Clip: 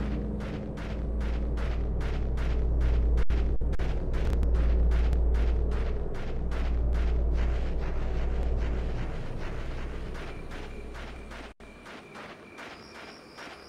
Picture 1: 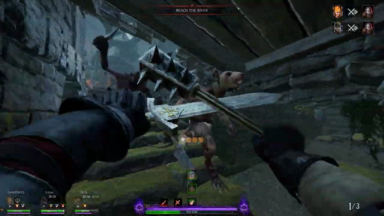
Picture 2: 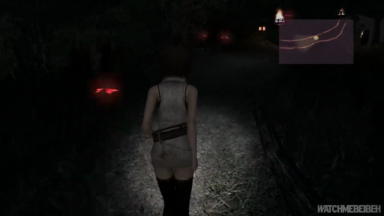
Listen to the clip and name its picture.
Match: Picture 2